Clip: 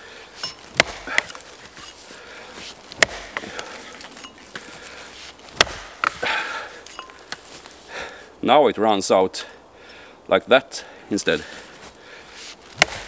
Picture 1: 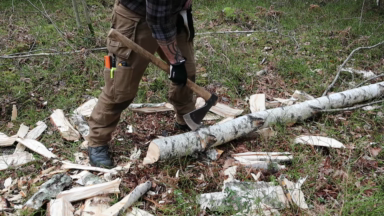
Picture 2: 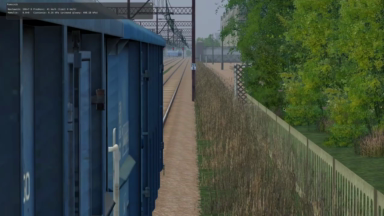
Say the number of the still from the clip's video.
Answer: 1